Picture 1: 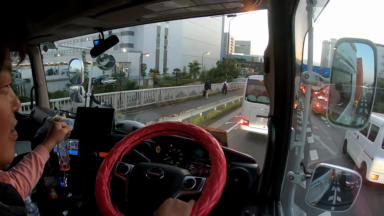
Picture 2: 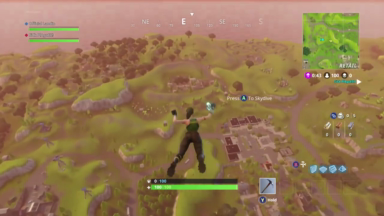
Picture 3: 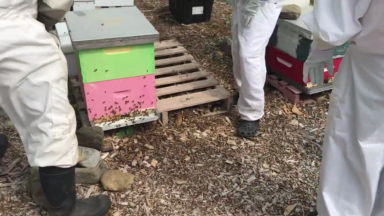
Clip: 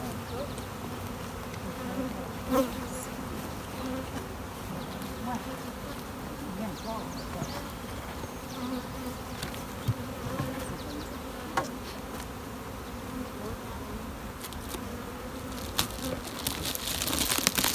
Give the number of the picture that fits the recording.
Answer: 3